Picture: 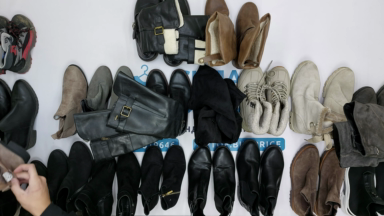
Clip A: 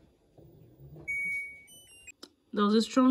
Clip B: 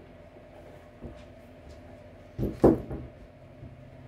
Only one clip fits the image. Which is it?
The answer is B